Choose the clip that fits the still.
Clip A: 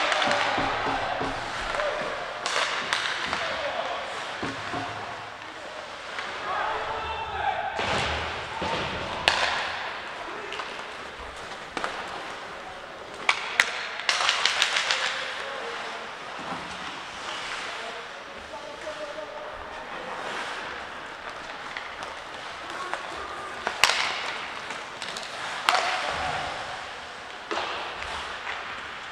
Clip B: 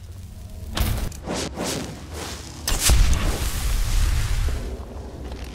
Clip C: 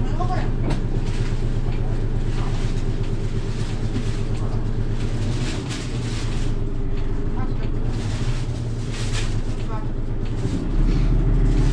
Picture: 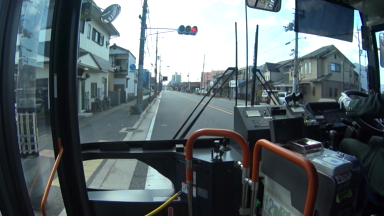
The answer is C